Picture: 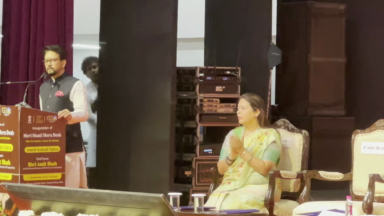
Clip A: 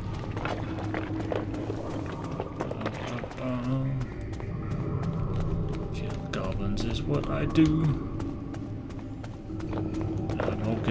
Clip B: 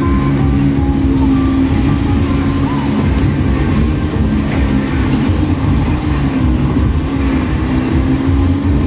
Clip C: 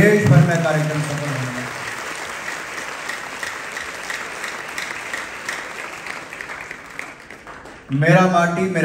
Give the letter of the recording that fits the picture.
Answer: C